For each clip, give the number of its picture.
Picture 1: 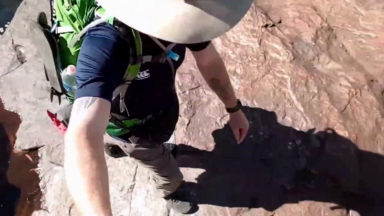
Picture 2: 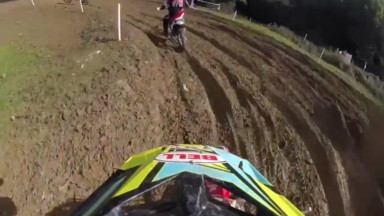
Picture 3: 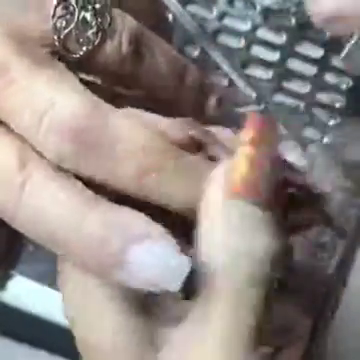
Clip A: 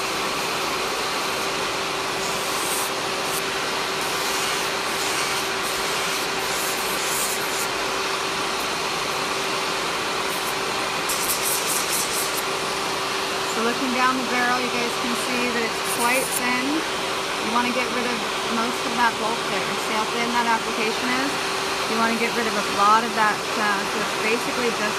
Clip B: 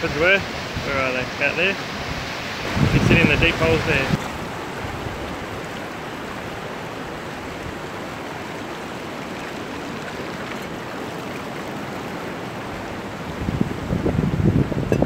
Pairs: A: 3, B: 1